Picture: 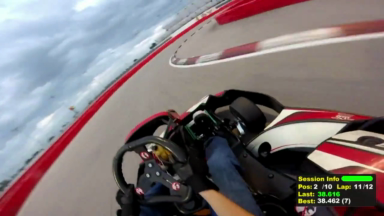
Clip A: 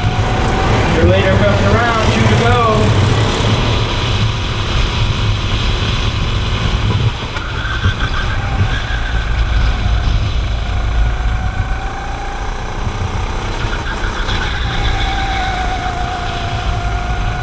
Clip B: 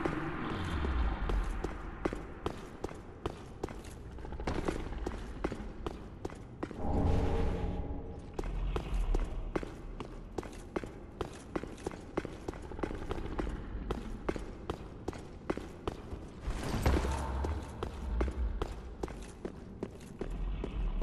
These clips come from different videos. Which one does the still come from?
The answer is A